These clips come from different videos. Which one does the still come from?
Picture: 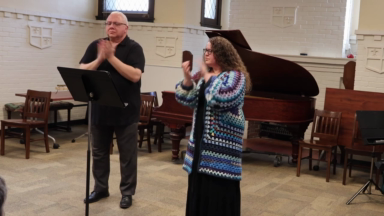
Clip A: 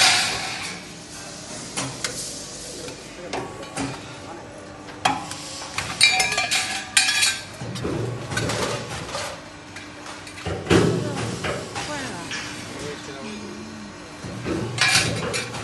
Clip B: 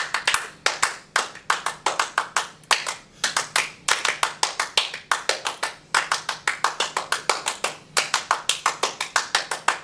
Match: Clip B